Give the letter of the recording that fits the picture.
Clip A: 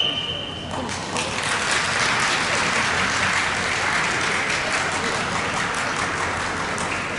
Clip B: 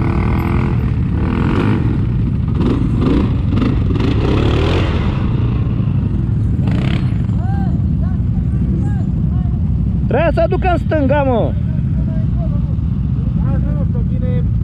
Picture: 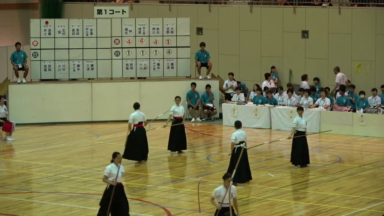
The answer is A